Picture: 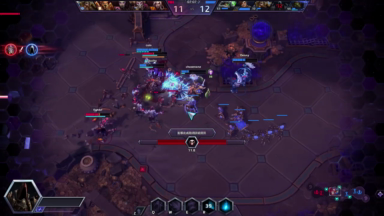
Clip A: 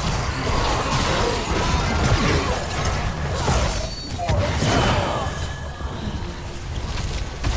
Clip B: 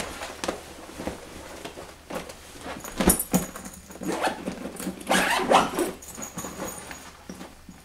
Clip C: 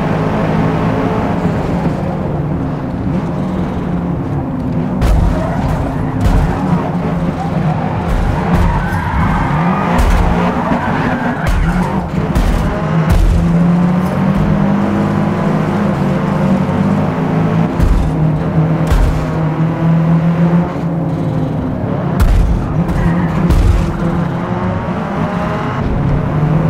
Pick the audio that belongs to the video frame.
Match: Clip A